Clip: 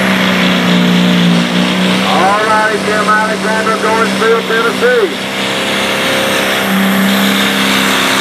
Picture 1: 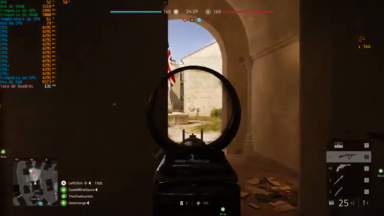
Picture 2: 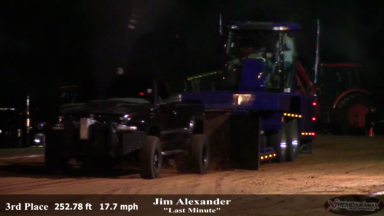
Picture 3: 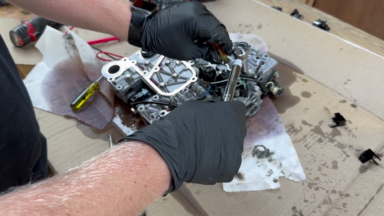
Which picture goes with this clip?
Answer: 2